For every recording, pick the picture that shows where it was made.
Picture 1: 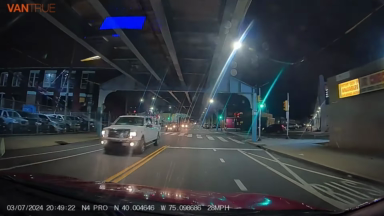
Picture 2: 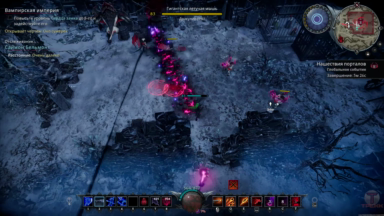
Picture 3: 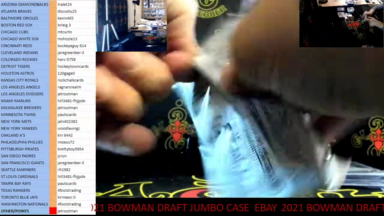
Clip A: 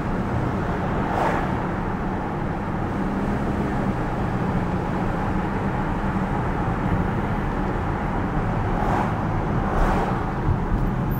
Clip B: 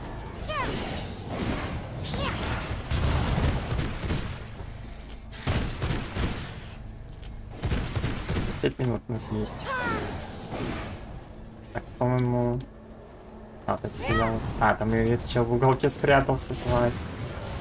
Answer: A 1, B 2